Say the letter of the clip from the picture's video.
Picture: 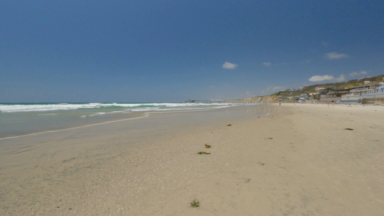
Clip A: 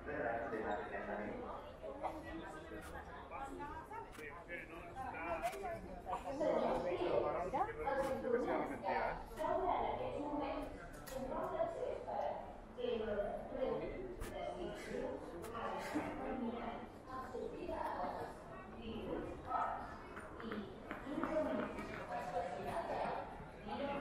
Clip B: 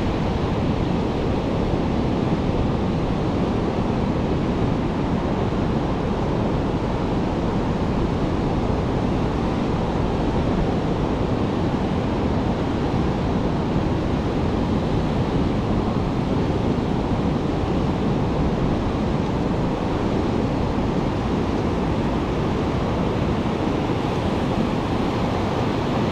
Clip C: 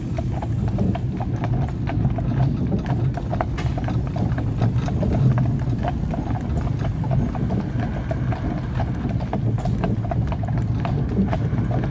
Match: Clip B